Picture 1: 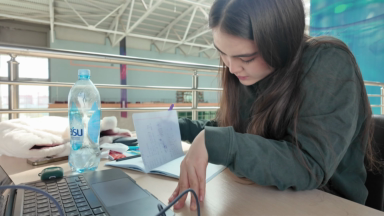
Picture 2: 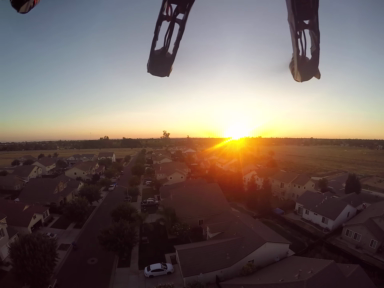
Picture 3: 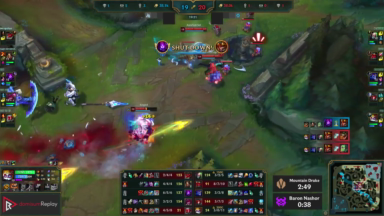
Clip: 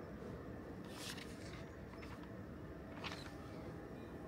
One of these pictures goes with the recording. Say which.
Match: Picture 1